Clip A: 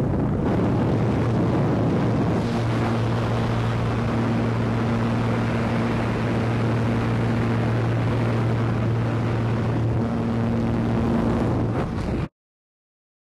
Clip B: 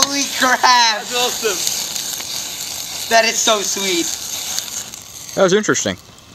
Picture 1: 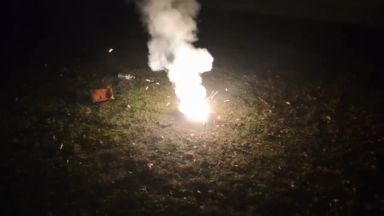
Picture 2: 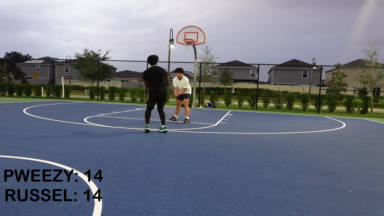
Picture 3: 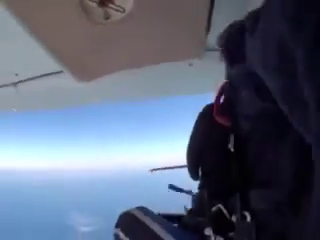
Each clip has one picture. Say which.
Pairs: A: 3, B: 1